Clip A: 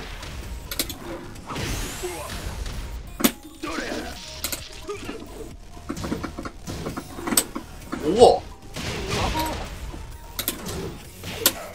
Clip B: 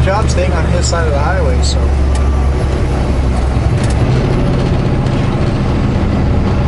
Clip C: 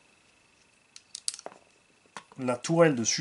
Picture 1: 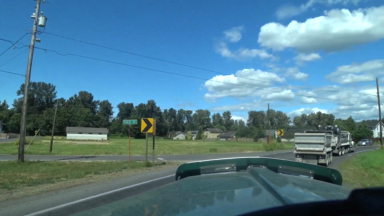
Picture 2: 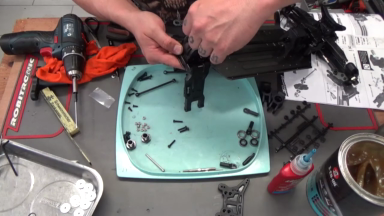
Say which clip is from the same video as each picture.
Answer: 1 B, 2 C